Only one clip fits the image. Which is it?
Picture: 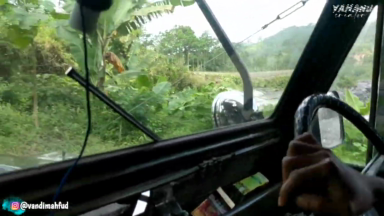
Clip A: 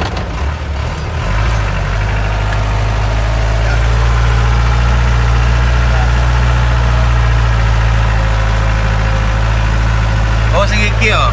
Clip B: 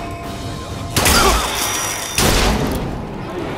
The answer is A